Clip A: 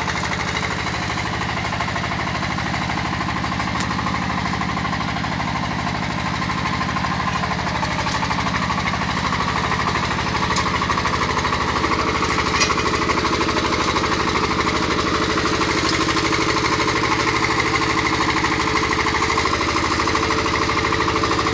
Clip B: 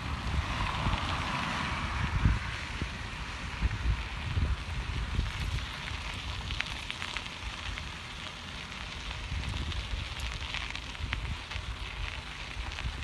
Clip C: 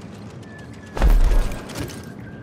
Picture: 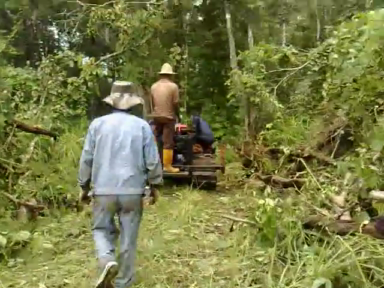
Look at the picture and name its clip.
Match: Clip A